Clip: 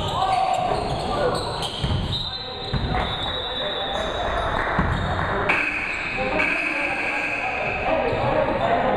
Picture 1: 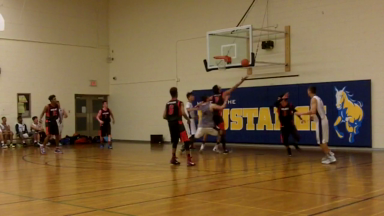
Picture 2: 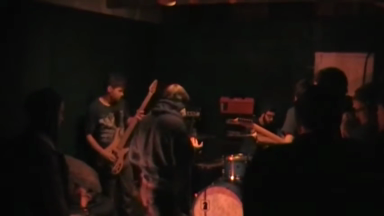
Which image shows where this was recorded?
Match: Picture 1